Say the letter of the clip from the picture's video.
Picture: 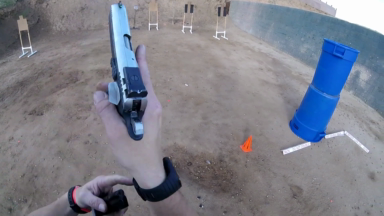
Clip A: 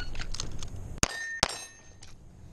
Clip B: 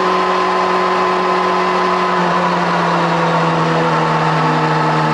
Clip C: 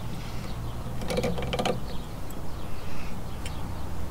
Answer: A